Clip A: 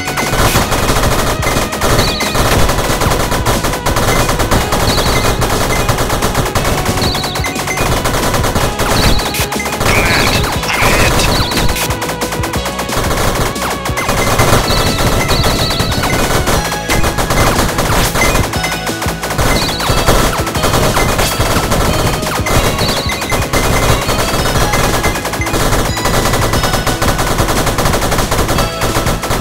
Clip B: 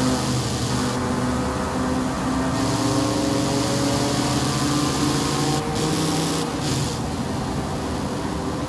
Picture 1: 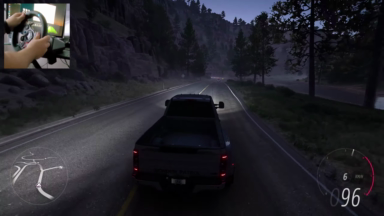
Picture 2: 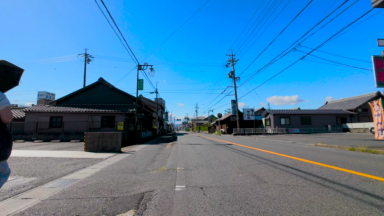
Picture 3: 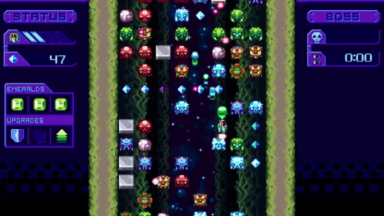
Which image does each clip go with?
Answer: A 3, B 1